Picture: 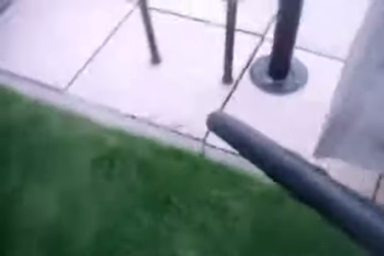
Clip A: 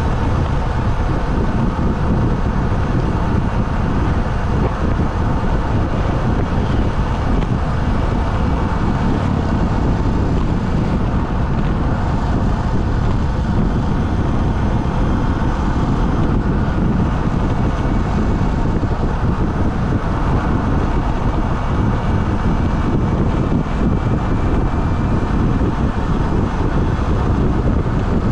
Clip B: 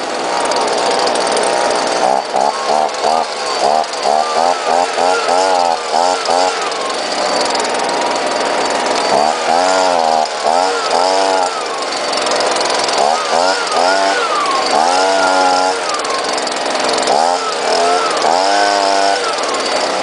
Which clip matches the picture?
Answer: B